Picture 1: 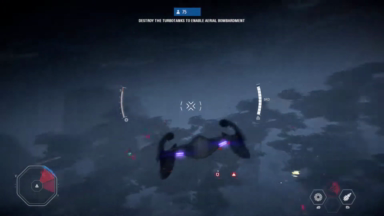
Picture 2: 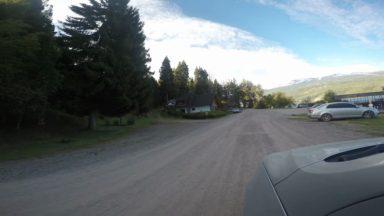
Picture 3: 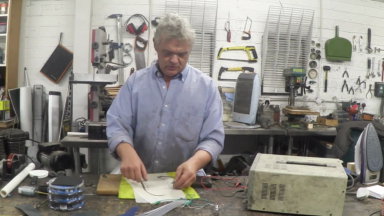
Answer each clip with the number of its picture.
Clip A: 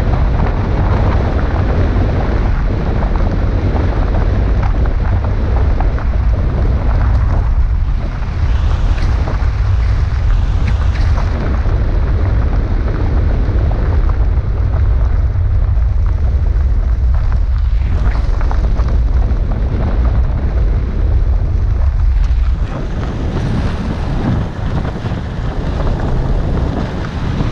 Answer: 2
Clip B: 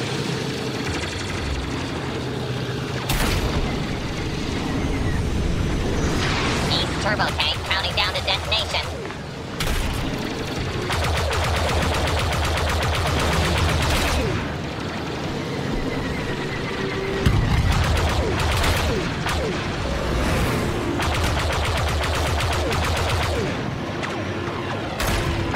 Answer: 1